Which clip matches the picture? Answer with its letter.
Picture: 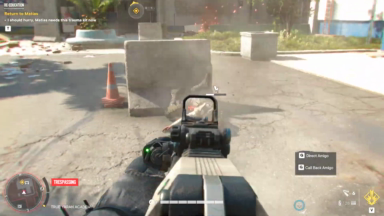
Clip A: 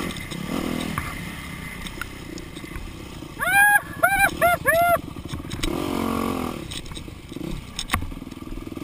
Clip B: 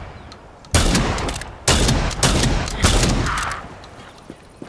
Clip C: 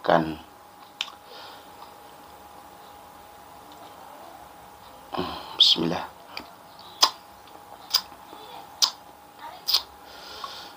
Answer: B